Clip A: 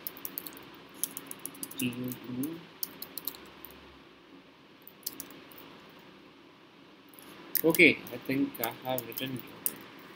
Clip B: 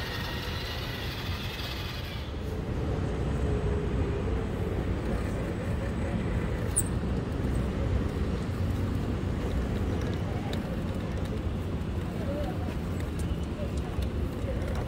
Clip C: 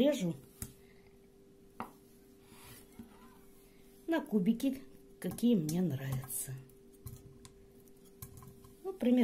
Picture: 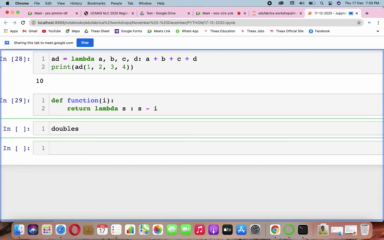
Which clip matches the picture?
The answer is A